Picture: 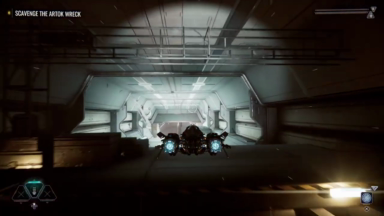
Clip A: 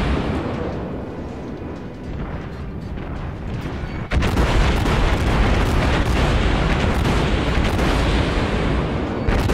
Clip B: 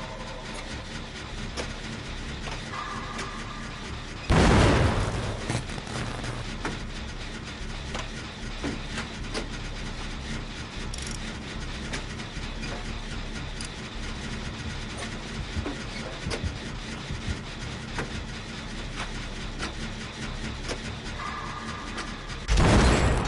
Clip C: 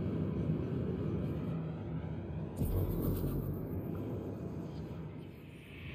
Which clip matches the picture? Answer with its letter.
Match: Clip C